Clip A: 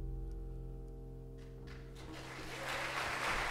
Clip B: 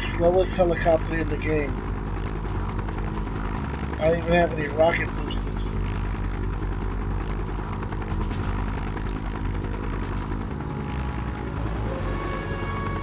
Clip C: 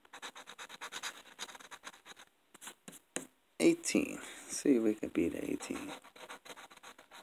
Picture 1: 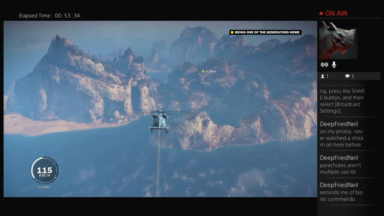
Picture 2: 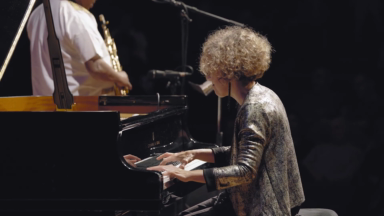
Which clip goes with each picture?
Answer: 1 B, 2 A